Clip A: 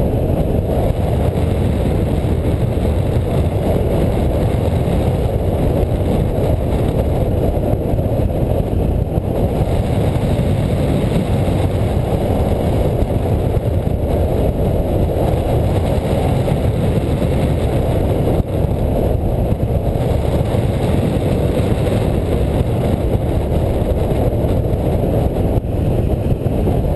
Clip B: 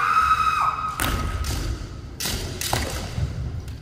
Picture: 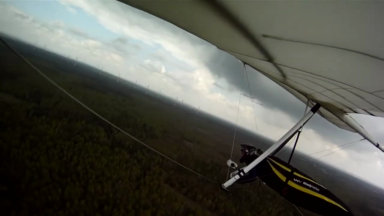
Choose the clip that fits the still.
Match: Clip A